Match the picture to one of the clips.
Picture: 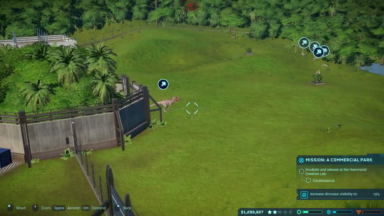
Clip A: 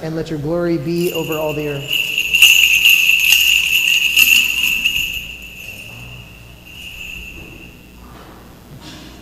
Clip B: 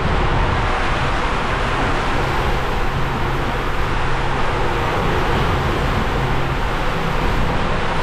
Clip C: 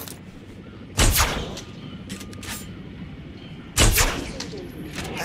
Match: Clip C